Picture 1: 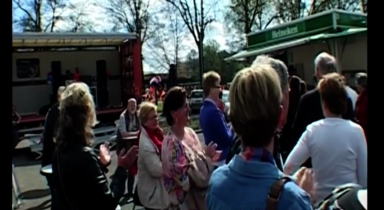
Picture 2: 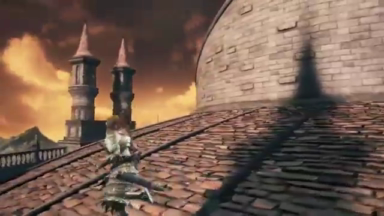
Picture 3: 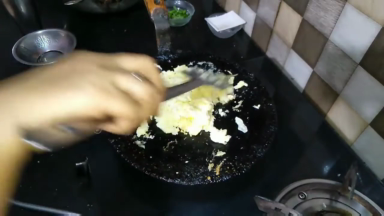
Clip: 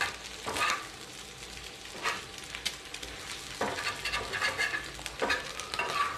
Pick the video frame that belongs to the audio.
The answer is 3